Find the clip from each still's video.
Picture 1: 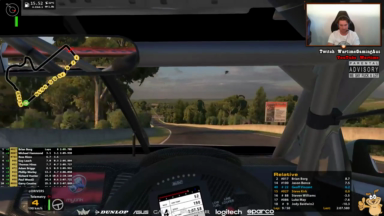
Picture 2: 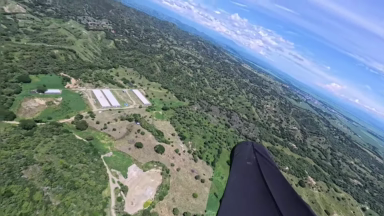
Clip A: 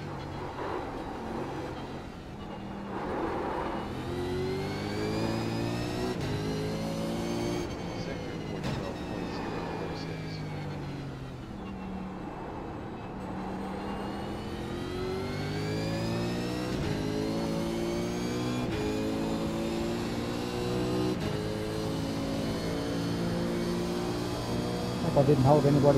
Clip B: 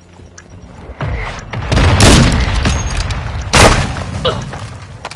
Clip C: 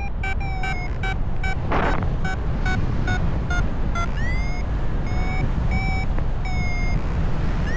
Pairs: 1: A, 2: C